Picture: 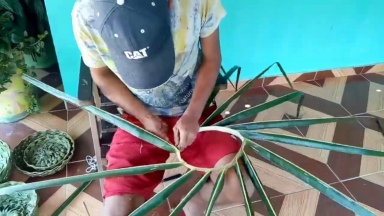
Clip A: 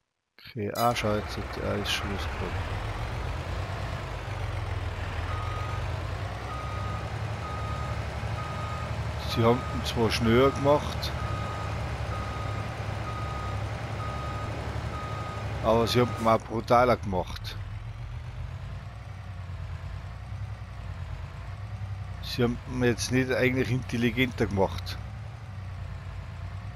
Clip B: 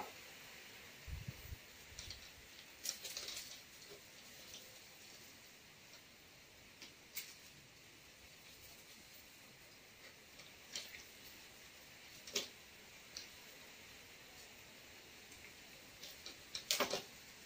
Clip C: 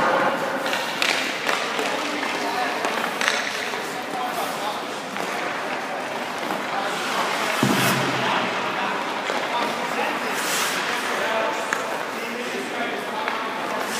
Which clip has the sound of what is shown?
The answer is B